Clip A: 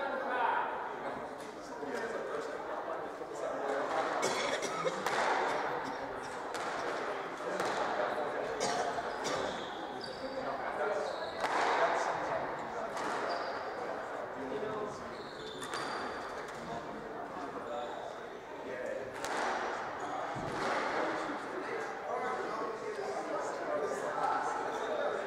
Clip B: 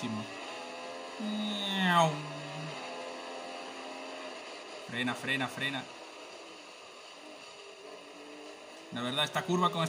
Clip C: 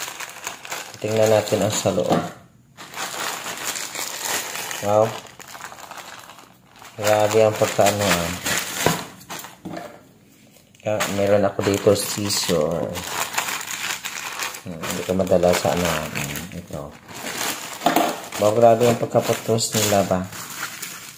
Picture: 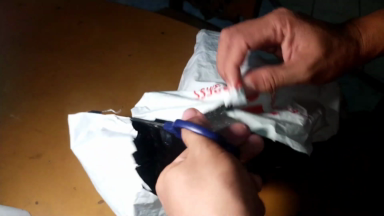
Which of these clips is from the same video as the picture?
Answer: C